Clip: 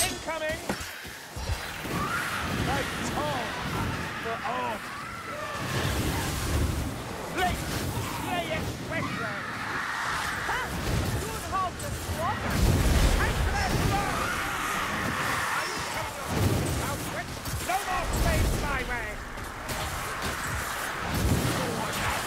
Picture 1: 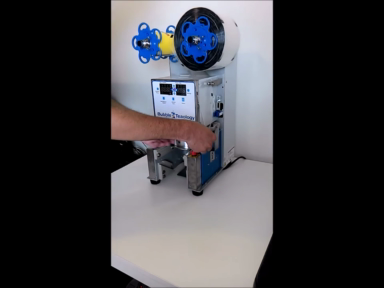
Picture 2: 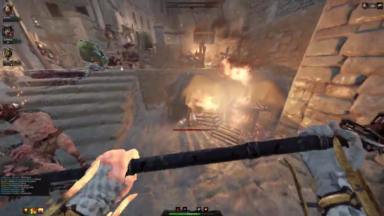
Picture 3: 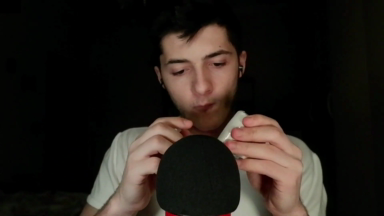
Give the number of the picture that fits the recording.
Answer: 2